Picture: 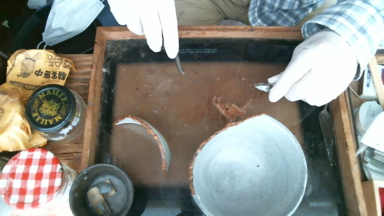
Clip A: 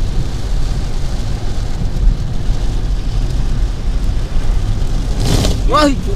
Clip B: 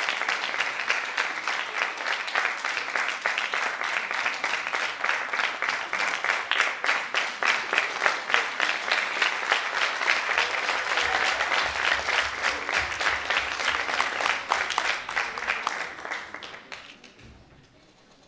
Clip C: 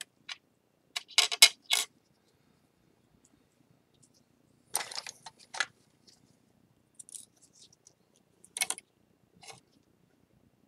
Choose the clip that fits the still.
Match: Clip C